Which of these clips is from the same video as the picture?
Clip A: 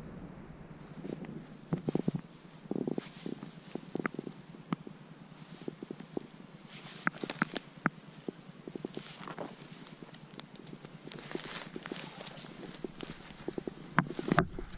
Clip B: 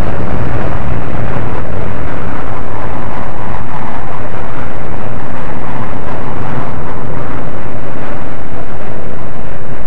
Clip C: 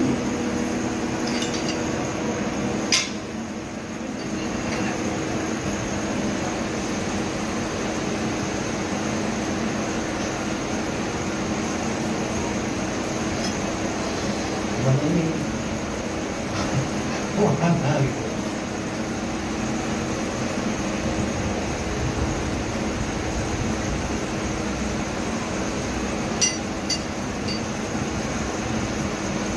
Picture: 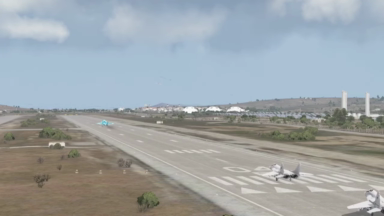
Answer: B